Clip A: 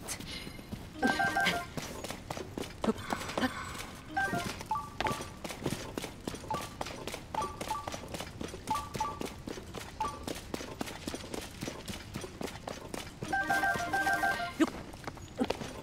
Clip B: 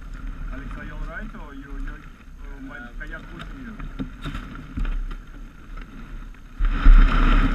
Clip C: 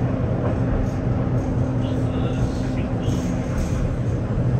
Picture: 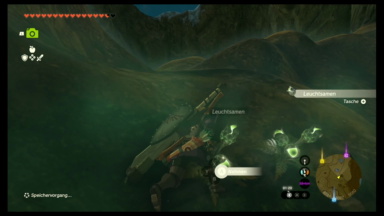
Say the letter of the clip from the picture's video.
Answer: A